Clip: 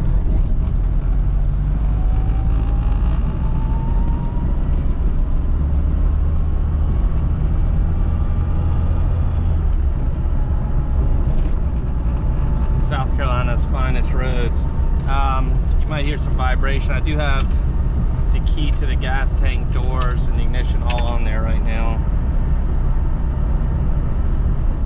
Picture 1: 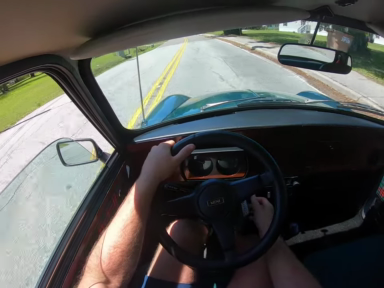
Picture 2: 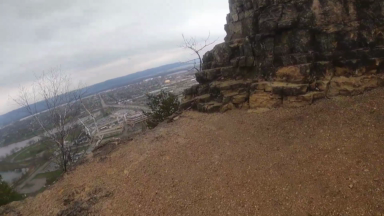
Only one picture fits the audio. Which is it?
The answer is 1